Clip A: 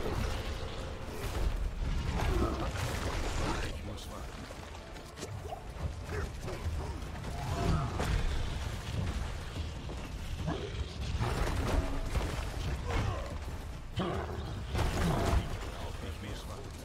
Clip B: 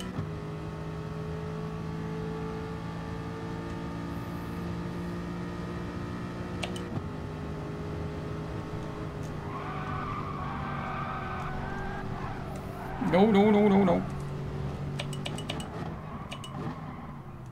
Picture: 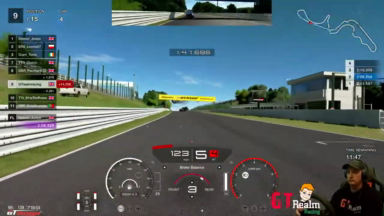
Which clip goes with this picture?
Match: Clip B